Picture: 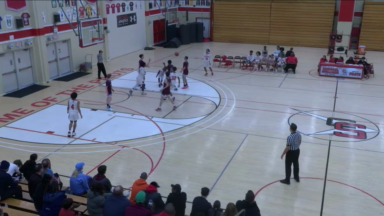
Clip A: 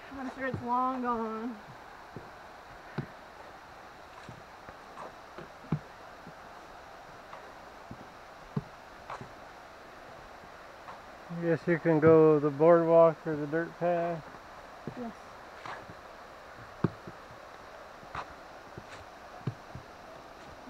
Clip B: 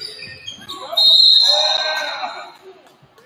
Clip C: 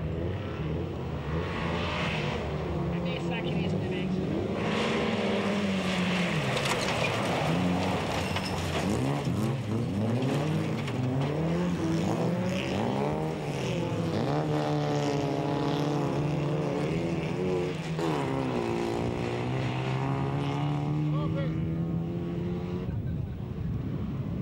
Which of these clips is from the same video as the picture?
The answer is B